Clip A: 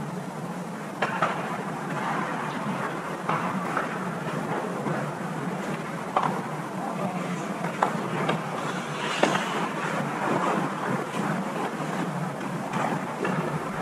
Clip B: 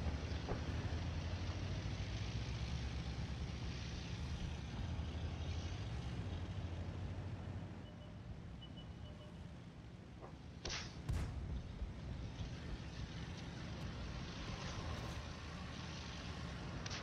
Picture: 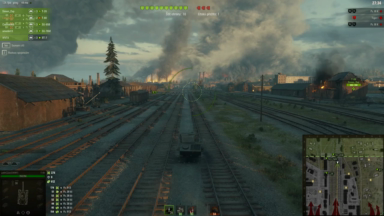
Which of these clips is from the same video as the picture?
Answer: B